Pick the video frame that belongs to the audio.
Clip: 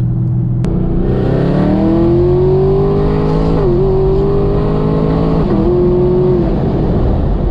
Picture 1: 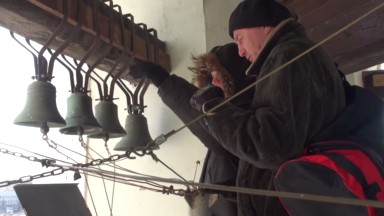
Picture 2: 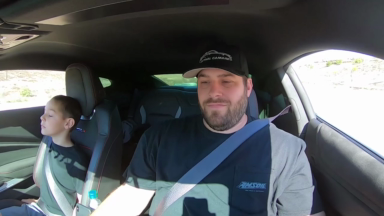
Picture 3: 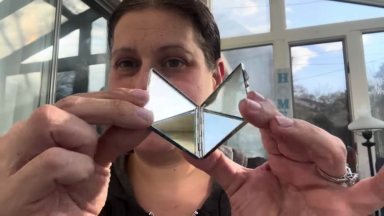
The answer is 2